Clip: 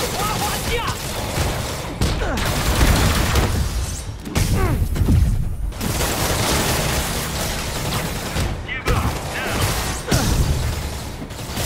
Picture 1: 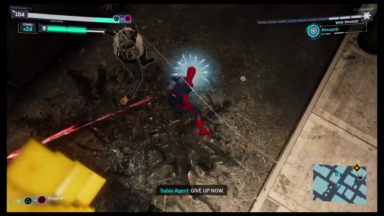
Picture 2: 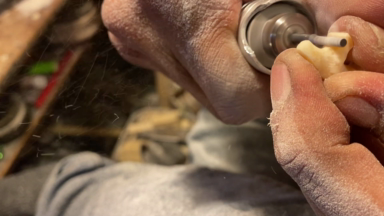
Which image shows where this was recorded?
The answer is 1